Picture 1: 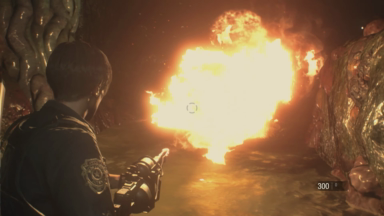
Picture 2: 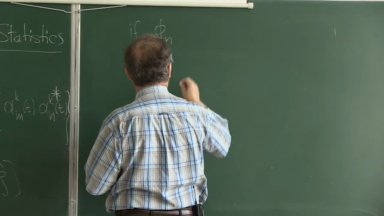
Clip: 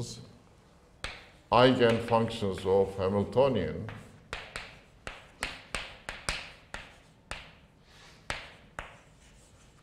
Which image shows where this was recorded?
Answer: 2